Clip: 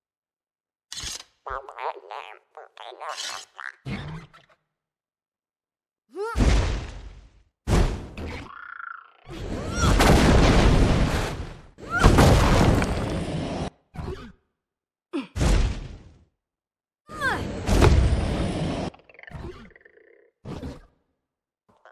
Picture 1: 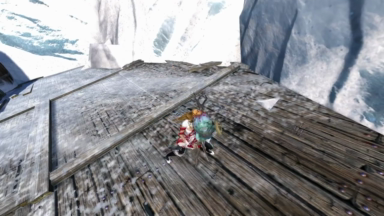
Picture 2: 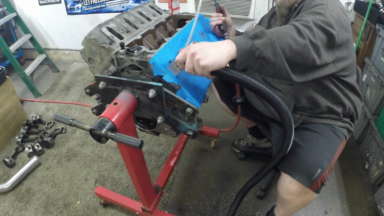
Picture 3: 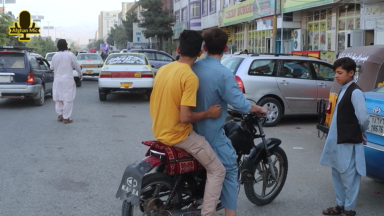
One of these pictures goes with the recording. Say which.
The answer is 1